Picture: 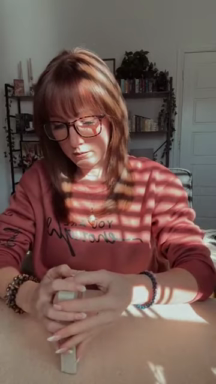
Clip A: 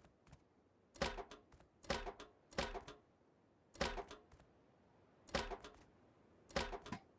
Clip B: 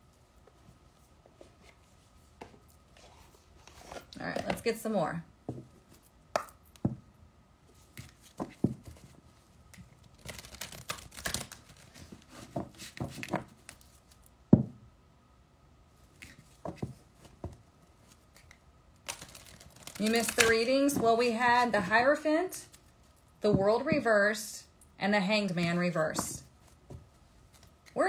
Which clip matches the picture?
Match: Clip B